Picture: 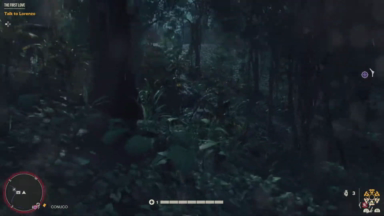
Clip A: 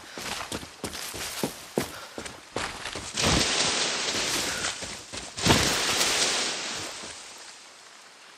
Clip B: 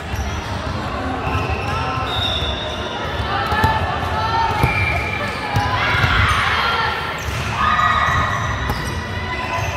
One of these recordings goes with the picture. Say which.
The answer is A